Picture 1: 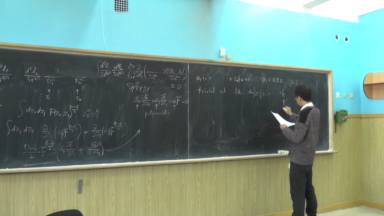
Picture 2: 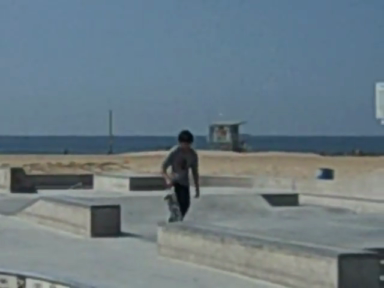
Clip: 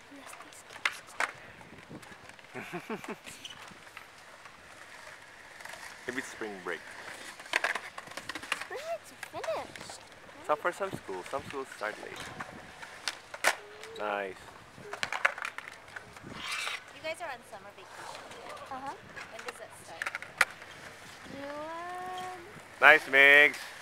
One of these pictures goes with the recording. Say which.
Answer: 2